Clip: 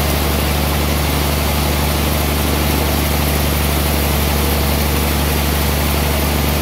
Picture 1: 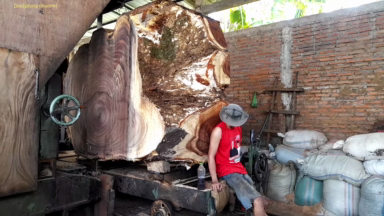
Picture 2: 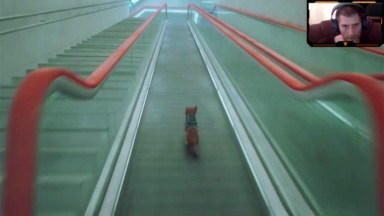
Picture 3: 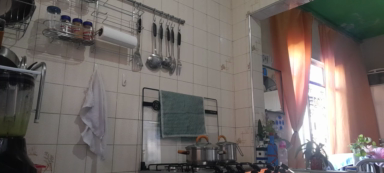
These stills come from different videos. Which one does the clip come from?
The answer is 1